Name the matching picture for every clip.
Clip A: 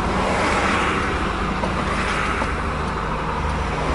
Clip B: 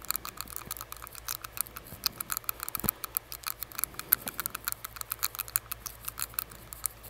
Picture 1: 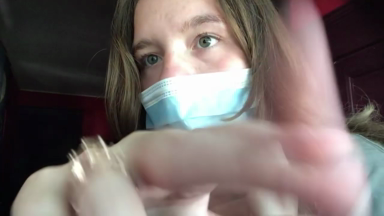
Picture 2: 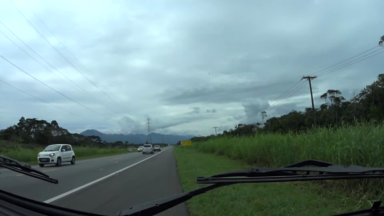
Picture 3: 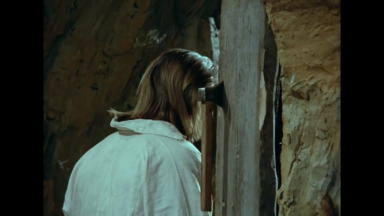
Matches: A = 2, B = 1